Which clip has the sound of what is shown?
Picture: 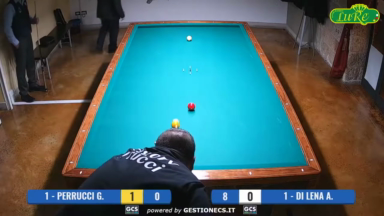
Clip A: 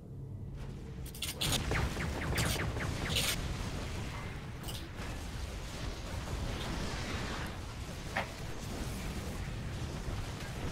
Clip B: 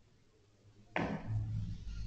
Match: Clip B